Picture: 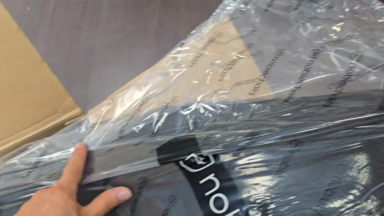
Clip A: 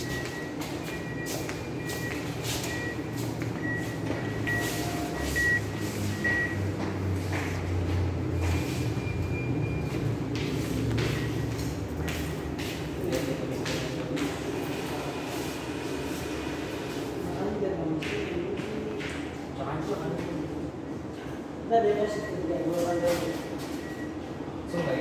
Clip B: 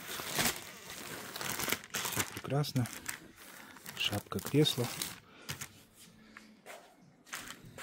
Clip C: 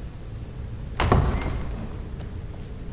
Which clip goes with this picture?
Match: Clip B